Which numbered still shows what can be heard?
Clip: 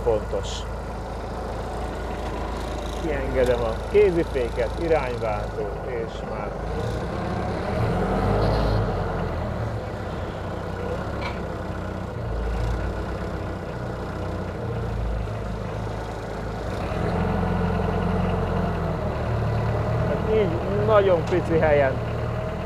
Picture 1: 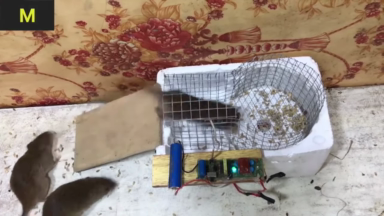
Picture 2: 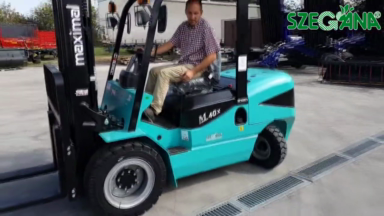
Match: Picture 2